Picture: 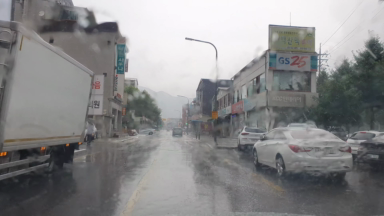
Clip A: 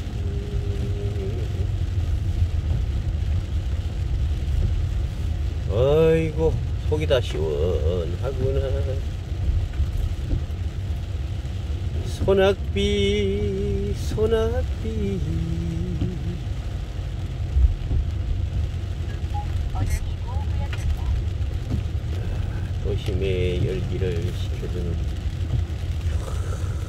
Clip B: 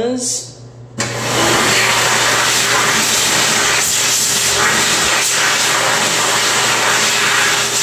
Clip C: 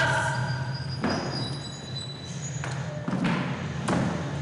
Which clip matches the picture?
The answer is A